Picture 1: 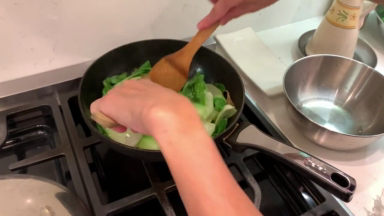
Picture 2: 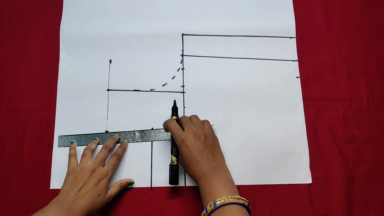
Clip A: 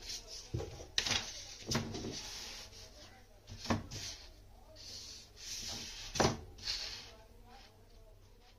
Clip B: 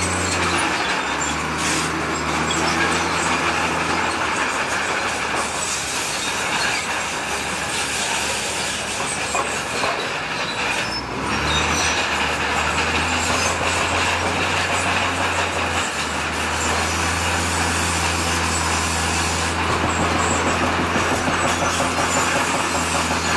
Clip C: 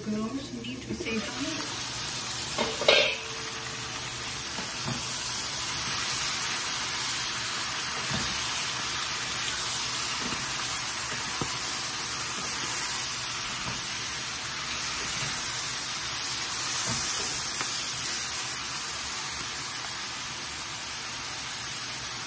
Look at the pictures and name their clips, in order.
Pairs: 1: C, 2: A